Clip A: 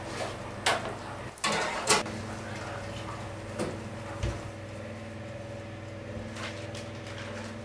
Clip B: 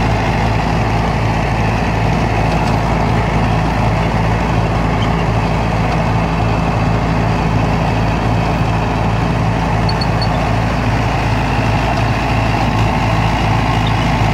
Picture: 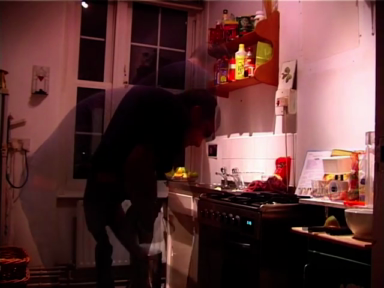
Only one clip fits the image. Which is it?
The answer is A